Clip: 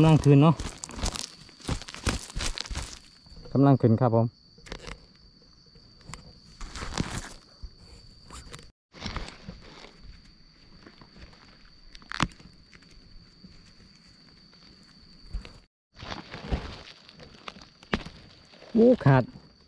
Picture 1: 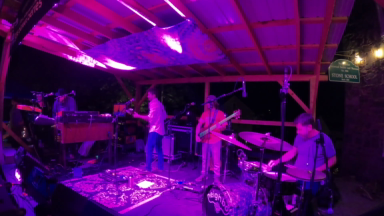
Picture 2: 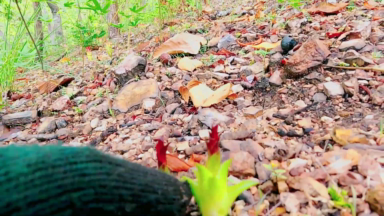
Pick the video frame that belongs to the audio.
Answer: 2